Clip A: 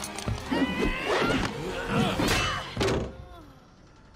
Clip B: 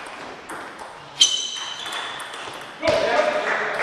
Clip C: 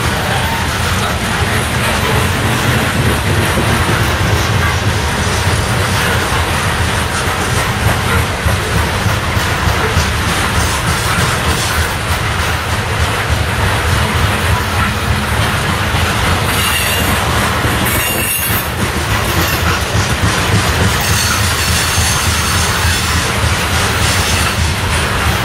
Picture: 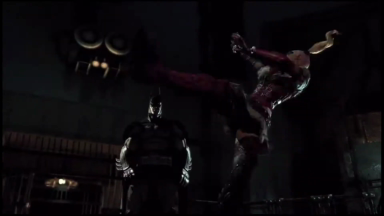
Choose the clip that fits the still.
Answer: A